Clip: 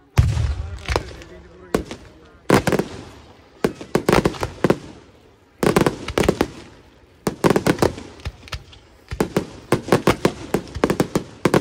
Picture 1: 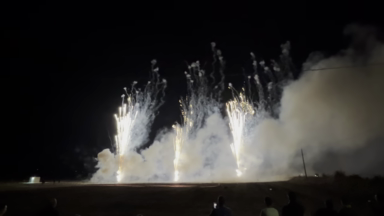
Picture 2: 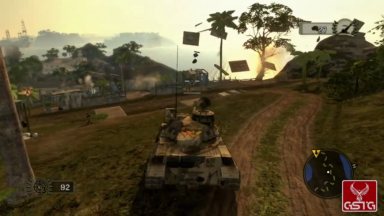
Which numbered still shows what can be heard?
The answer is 1